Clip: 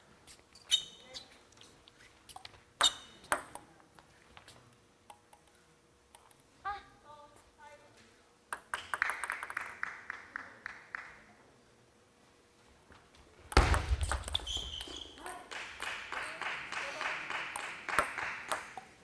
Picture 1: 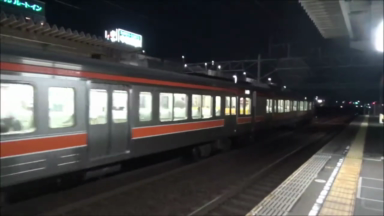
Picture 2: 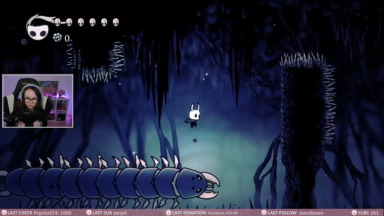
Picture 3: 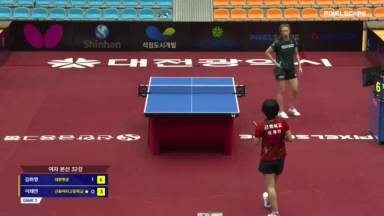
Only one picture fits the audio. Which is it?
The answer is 3